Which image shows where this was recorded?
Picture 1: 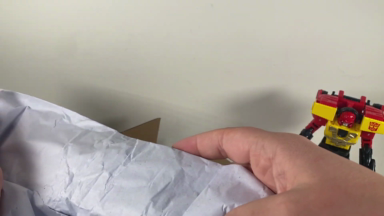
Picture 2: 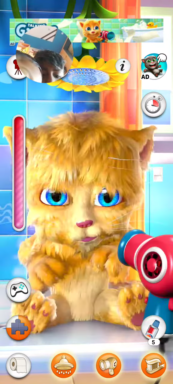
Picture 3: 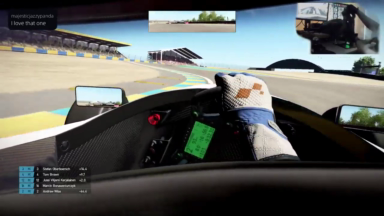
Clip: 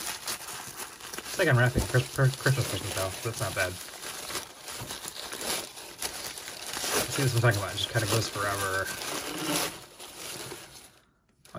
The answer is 1